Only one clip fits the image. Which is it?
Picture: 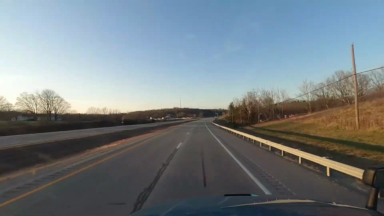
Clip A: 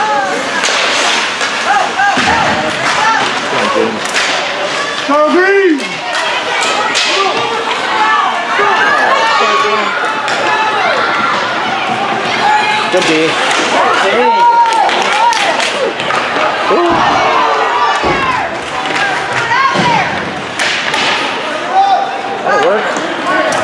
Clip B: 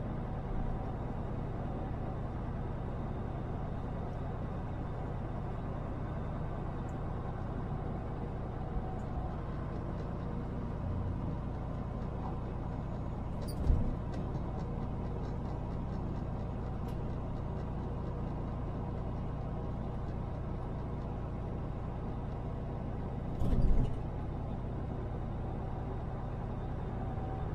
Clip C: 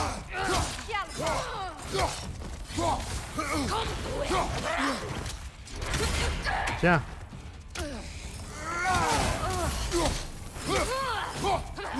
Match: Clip B